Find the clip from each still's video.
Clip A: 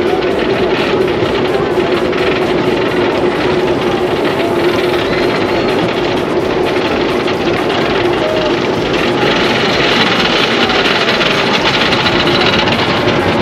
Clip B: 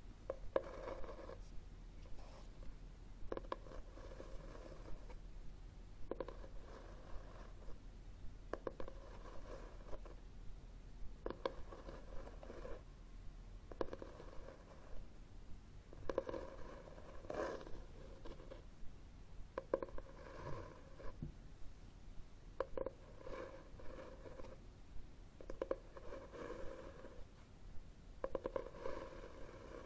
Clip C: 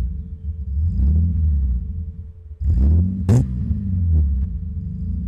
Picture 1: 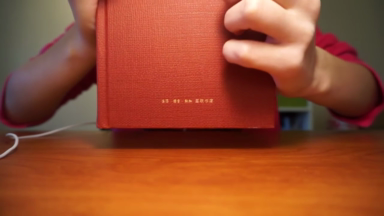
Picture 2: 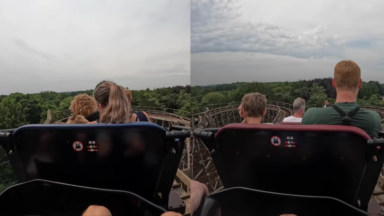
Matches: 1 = B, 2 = A